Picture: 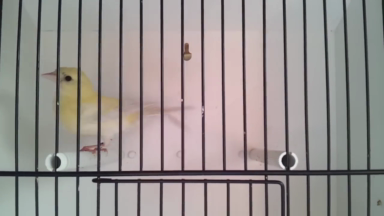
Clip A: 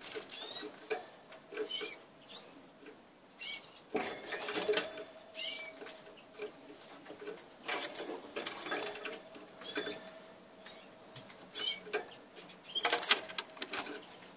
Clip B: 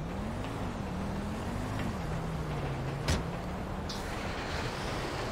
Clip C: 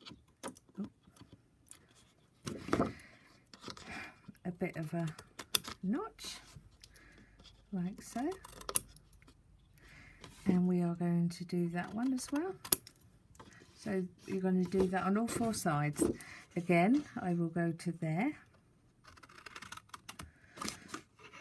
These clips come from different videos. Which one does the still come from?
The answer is A